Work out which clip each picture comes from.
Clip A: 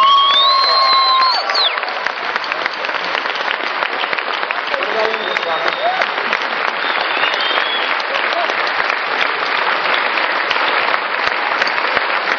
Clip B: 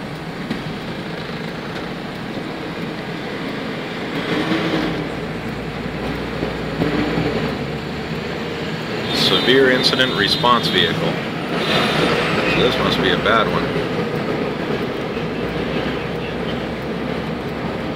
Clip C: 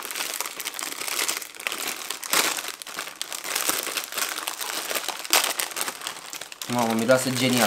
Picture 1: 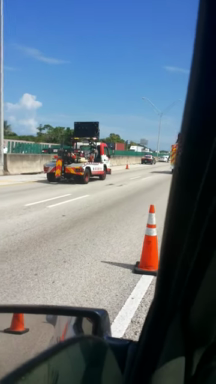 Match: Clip B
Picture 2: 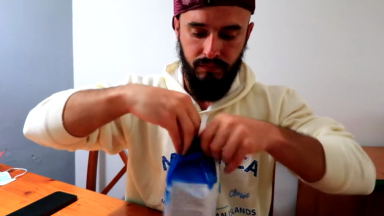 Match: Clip C